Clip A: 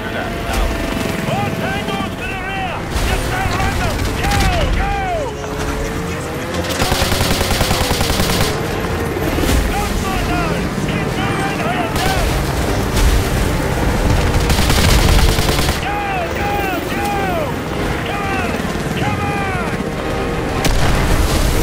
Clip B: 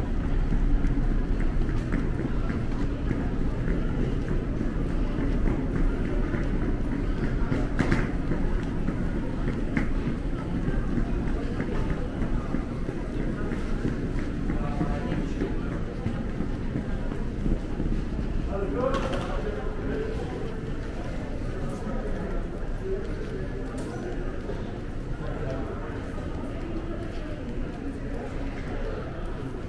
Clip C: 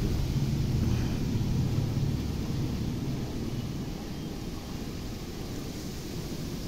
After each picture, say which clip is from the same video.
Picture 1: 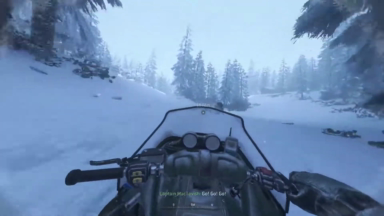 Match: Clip A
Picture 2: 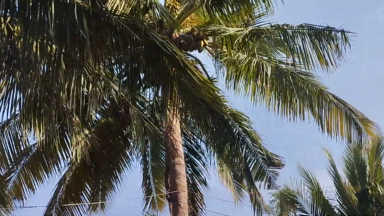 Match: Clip C